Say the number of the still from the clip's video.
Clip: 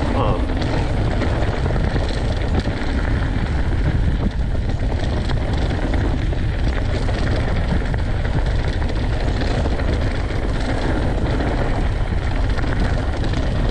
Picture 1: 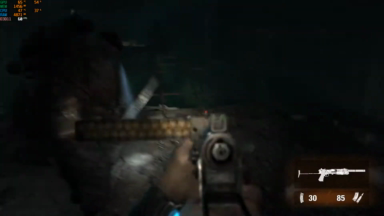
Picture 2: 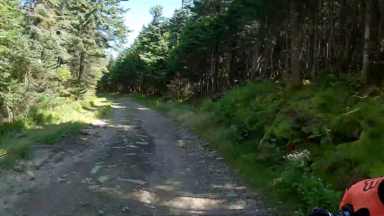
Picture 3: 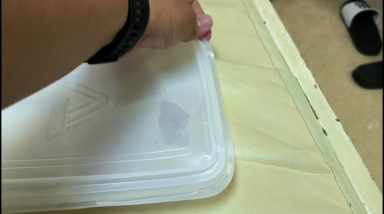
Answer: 2